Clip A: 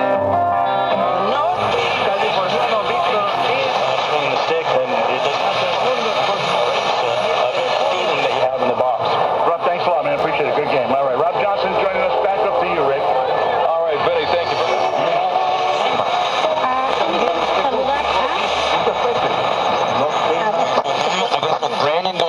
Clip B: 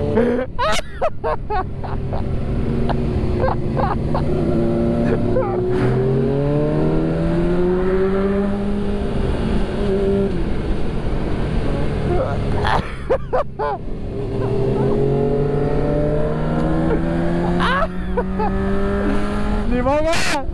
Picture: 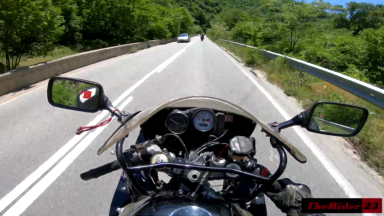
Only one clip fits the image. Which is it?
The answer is B